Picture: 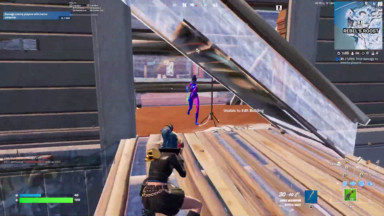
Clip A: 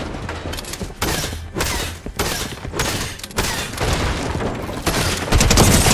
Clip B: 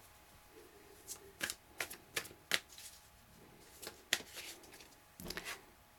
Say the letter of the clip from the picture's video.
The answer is A